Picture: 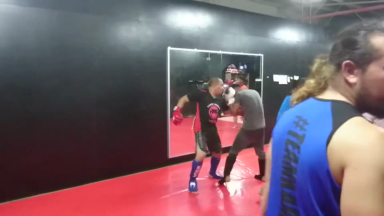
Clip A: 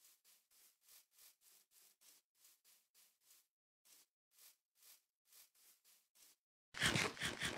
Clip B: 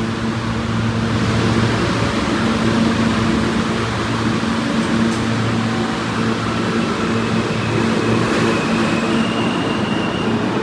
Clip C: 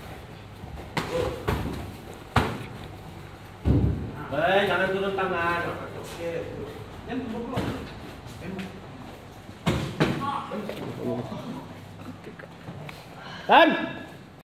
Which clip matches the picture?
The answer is C